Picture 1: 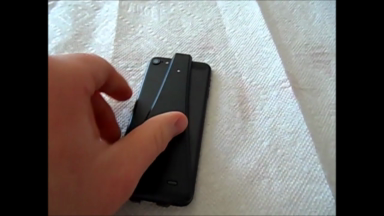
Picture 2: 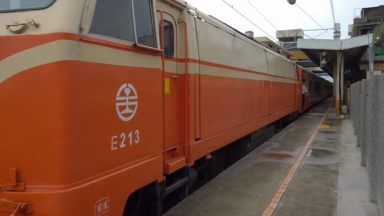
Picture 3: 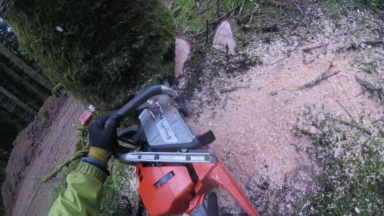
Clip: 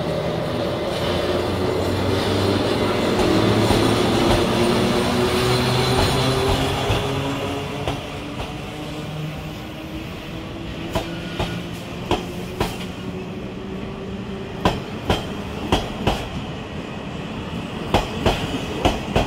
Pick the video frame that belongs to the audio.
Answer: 2